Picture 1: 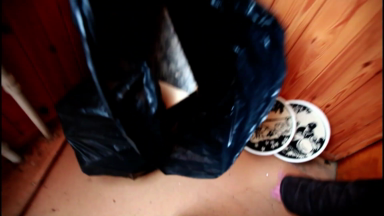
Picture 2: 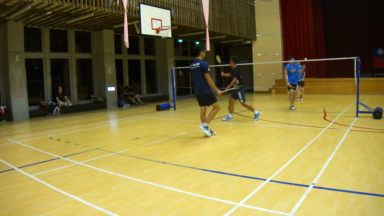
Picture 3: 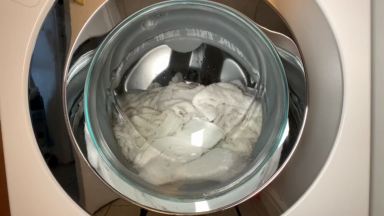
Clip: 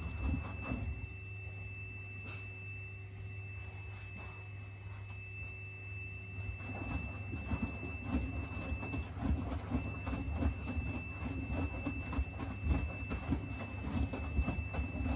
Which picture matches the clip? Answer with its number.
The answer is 3